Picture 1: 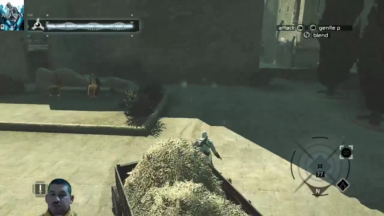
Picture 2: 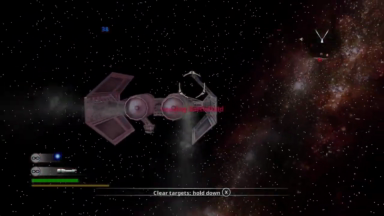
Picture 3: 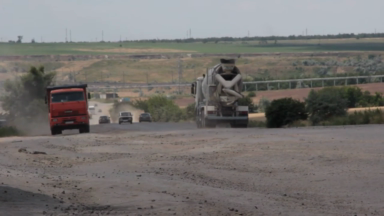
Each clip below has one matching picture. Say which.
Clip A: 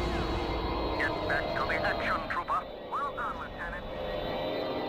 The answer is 2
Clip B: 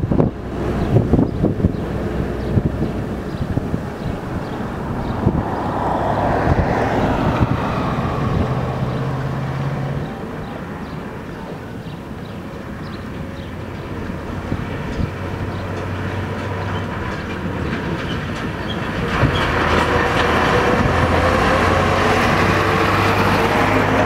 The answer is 3